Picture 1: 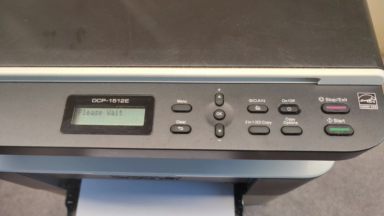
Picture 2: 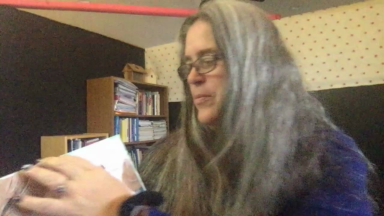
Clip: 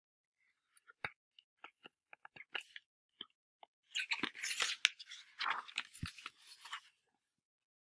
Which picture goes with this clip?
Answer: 2